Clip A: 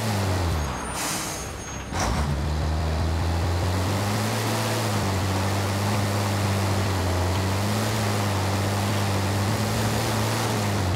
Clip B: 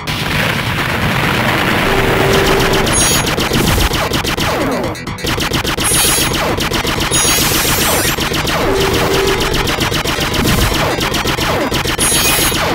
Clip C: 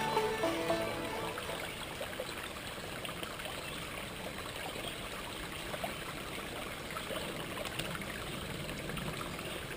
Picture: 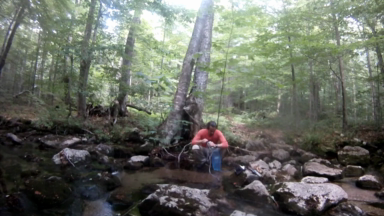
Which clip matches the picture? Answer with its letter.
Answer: C